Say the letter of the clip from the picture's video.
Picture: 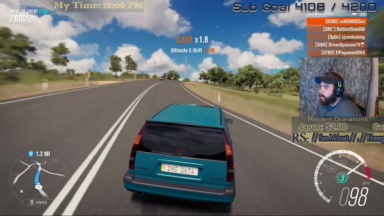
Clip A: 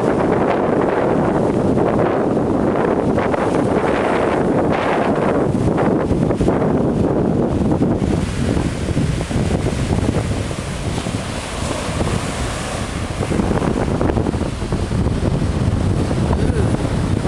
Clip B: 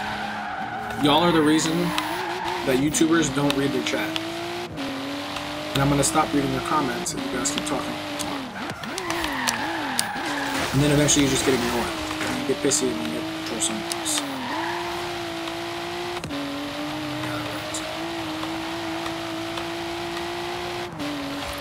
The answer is B